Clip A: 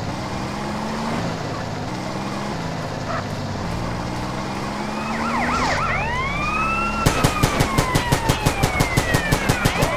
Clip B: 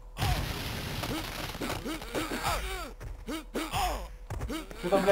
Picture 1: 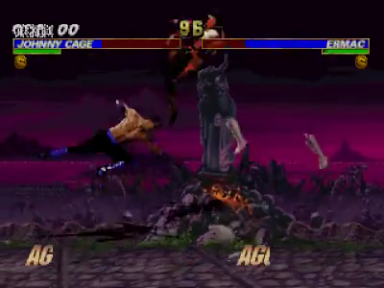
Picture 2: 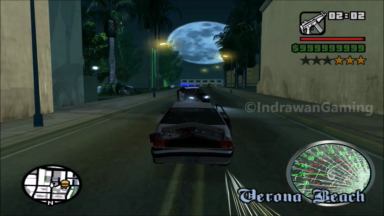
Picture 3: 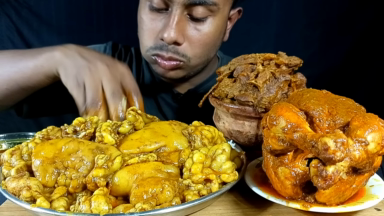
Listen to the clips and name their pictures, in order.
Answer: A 2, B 1